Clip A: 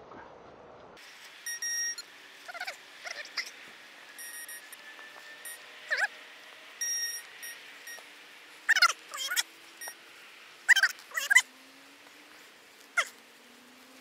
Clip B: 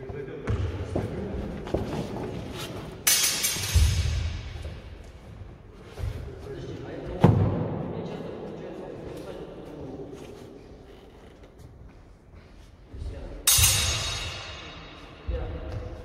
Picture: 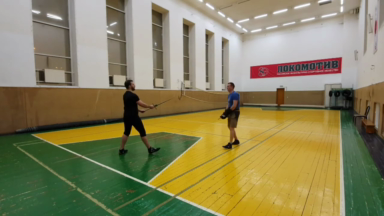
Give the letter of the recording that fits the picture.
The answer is B